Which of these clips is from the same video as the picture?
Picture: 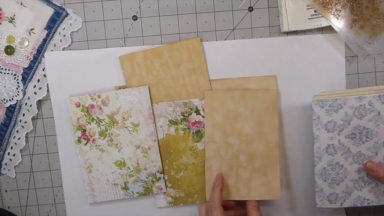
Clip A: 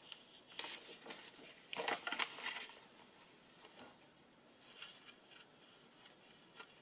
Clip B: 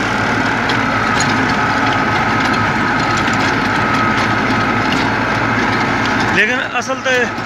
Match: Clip A